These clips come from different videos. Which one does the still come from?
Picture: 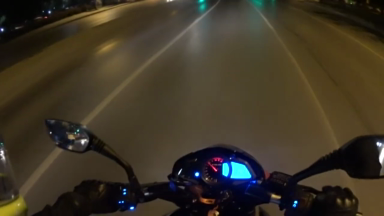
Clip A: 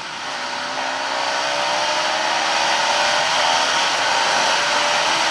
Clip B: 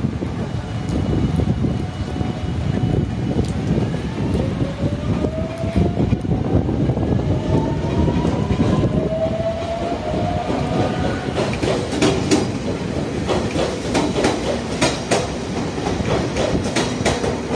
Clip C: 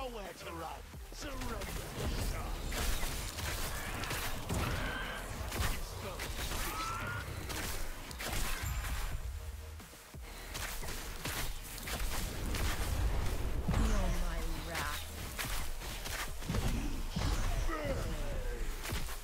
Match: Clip A